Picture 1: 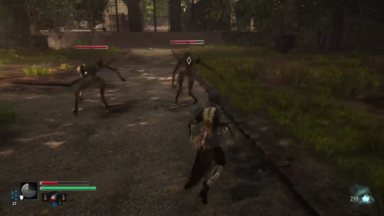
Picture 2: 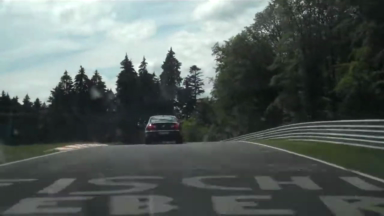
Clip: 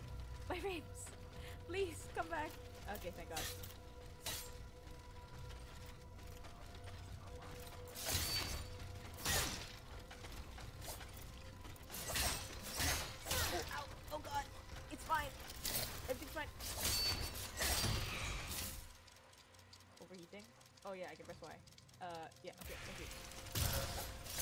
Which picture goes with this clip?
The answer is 1